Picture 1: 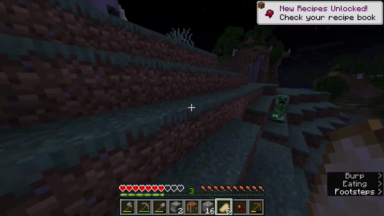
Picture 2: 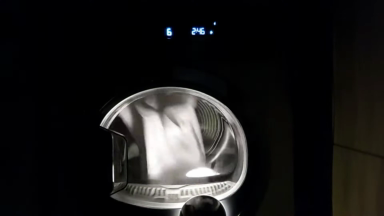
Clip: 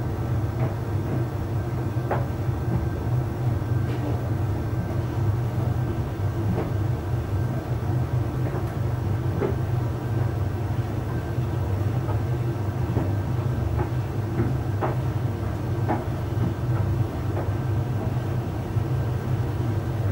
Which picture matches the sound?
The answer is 2